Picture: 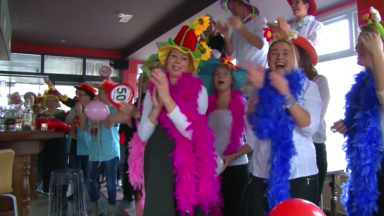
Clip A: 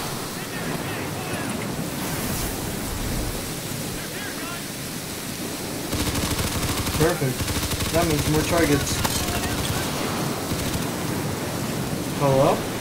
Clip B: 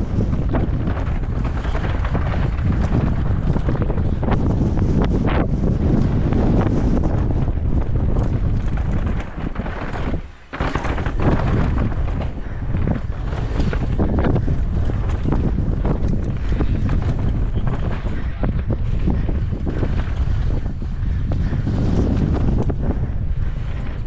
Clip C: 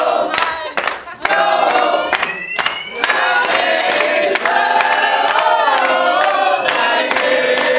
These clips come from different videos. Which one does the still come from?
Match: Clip C